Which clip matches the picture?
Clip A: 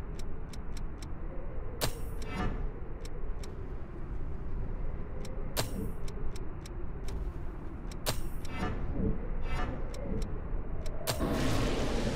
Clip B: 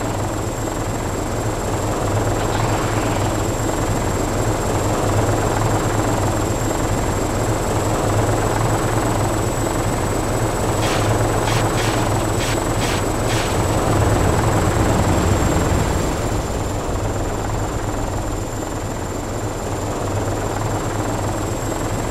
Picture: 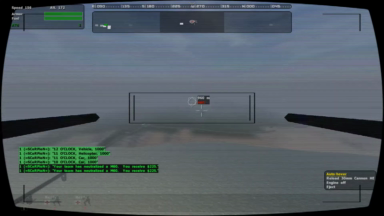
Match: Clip B